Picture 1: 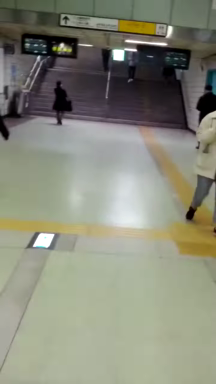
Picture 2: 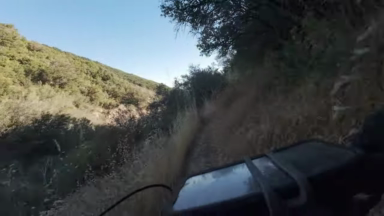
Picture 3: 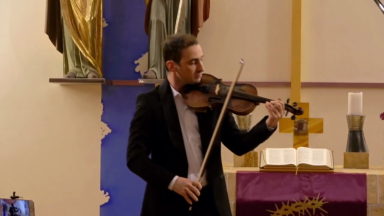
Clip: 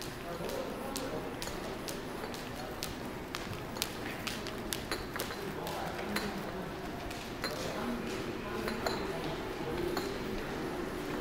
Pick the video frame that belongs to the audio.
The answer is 1